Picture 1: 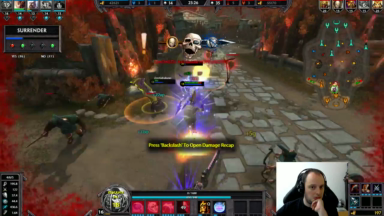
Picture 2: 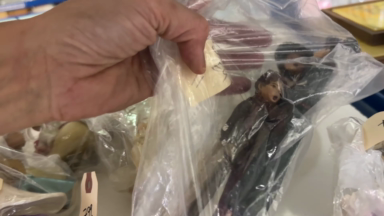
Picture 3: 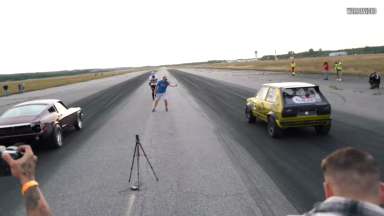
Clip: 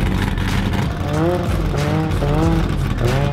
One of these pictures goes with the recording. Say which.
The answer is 3